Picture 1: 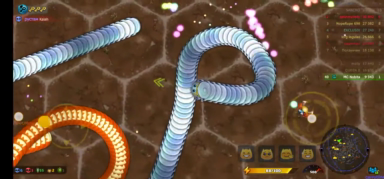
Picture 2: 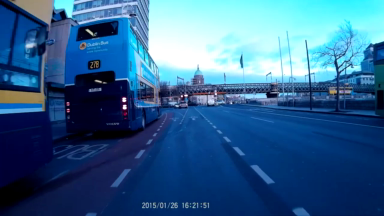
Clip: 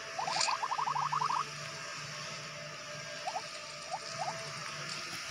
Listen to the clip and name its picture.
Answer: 1